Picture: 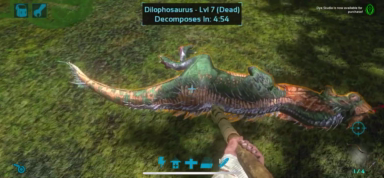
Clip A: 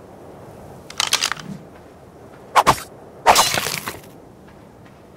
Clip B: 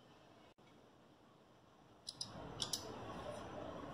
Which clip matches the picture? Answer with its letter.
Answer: A